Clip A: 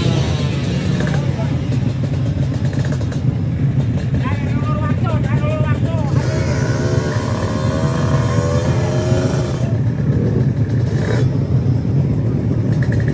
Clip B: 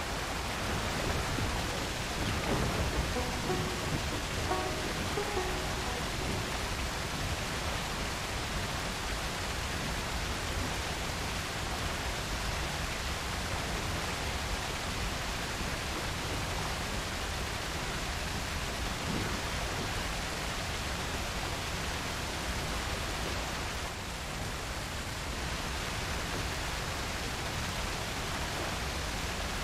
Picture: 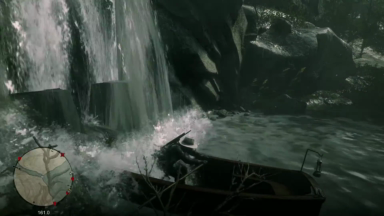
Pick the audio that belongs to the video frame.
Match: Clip B